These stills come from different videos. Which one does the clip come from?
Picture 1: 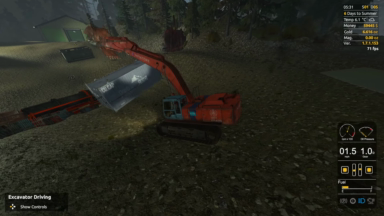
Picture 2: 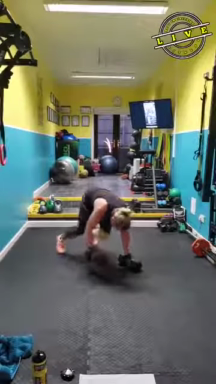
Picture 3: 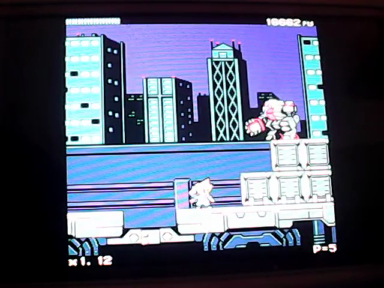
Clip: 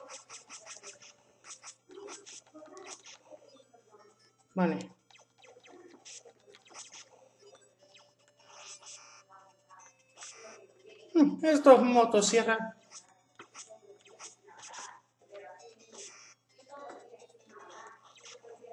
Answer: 3